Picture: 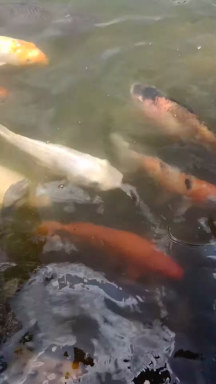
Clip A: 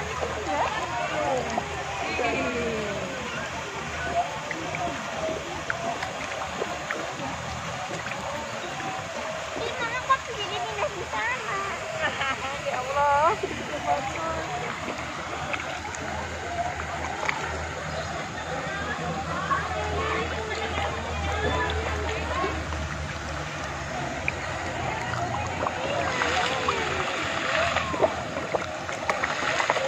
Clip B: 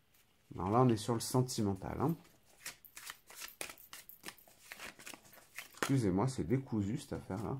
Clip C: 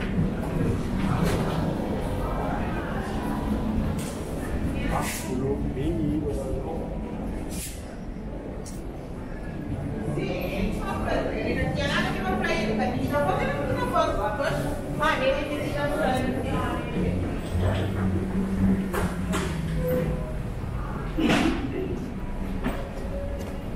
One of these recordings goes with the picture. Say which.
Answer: A